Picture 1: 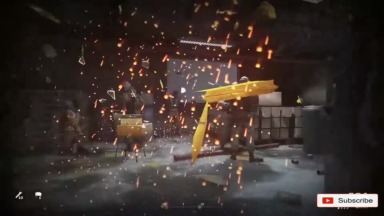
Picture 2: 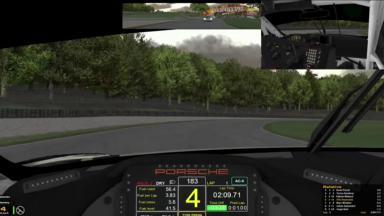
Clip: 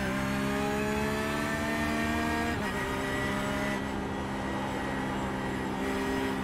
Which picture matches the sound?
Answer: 2